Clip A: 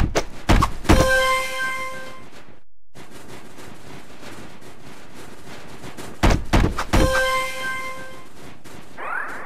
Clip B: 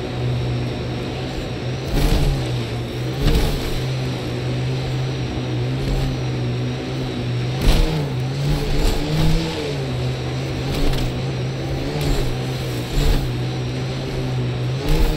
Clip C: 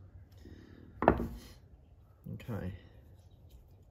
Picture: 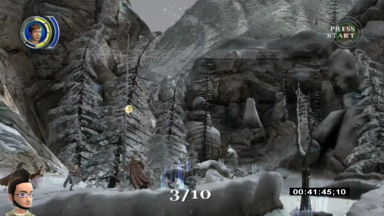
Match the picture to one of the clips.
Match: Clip A